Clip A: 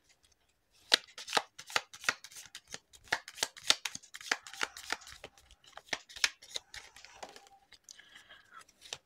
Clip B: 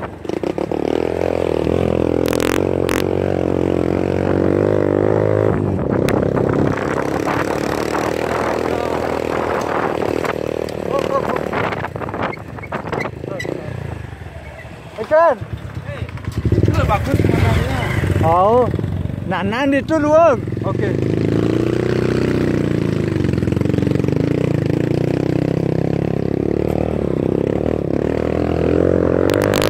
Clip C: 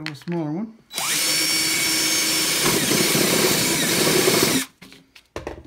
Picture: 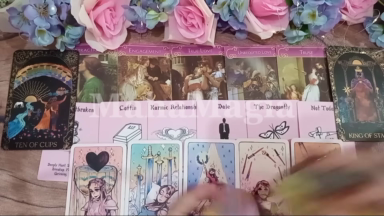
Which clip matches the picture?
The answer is A